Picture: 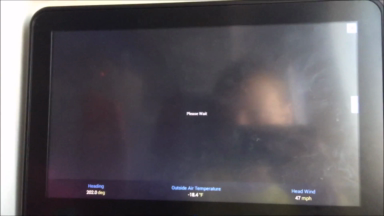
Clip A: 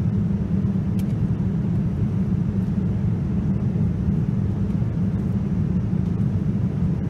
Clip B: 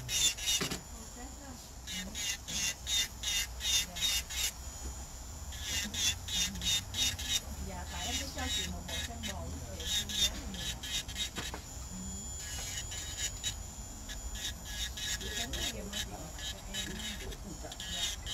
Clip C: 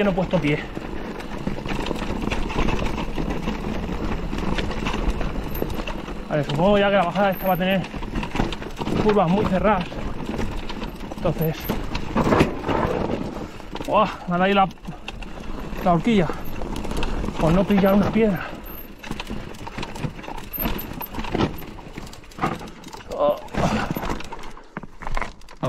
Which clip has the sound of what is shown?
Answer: A